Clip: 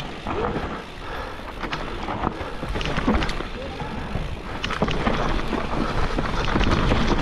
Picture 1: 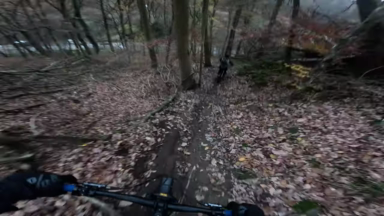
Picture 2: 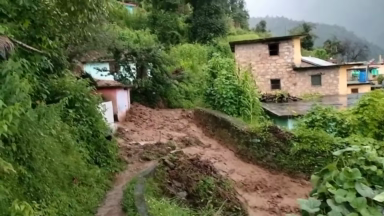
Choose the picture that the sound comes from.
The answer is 1